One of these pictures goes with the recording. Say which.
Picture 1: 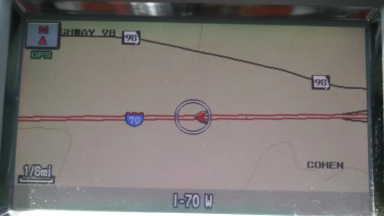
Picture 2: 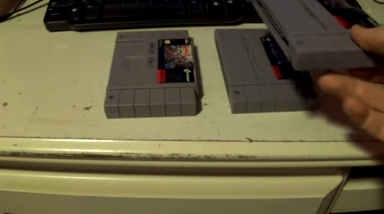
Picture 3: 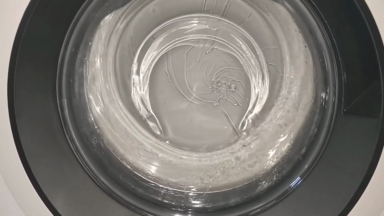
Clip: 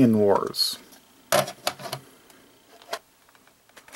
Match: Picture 2